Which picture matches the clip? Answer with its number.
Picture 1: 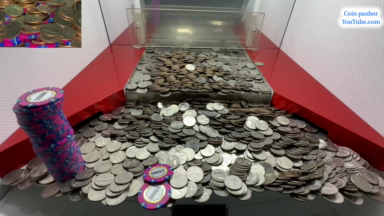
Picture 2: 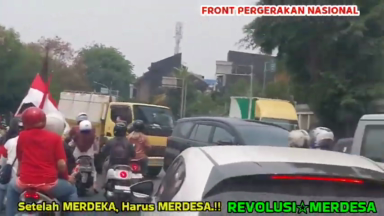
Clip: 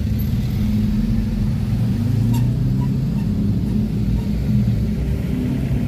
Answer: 2